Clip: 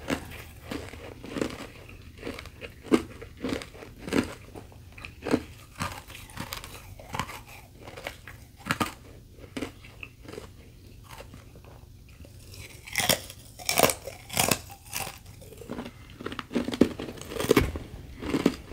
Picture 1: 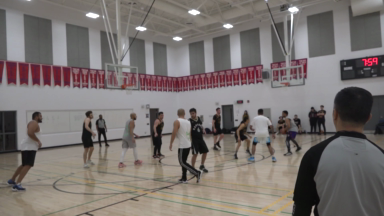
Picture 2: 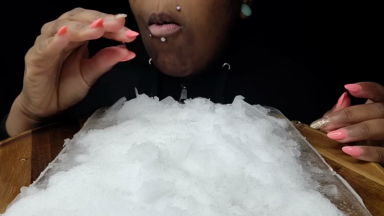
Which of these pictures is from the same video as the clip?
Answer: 2